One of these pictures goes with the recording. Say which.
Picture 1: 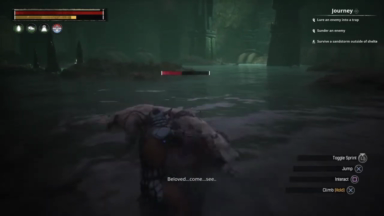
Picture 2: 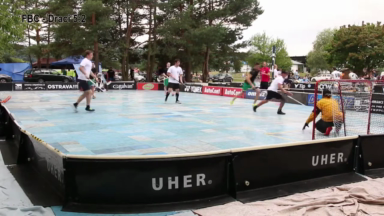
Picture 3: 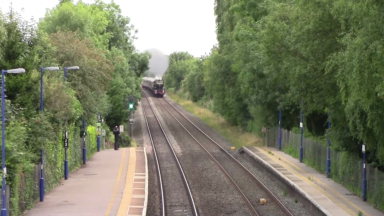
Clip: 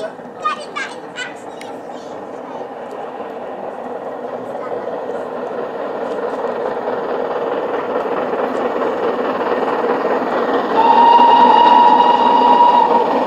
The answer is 3